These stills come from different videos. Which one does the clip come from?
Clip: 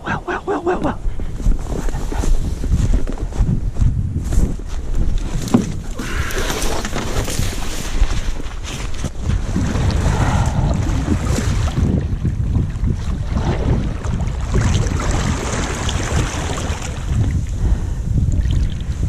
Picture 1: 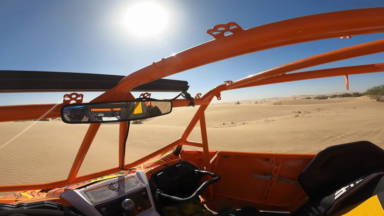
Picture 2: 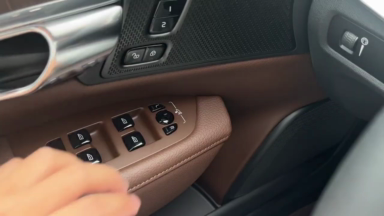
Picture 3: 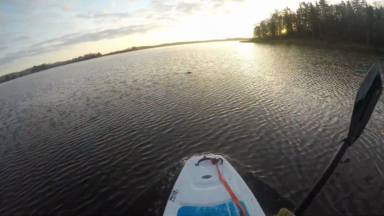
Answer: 3